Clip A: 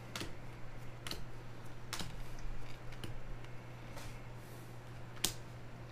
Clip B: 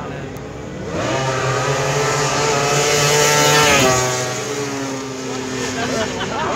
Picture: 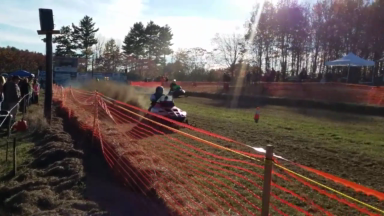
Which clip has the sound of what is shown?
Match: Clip B